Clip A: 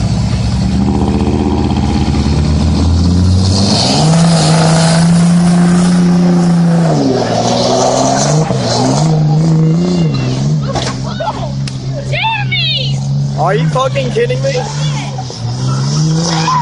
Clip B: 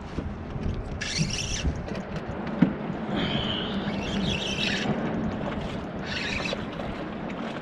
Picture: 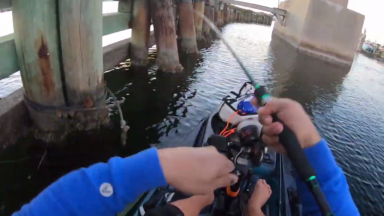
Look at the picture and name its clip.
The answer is B